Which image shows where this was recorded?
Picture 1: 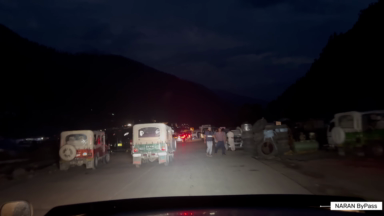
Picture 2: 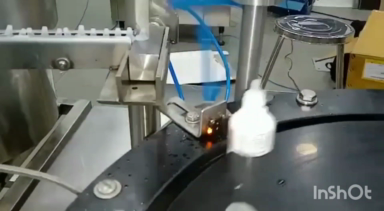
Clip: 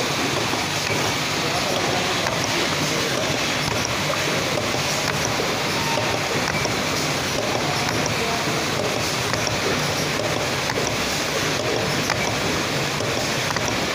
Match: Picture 2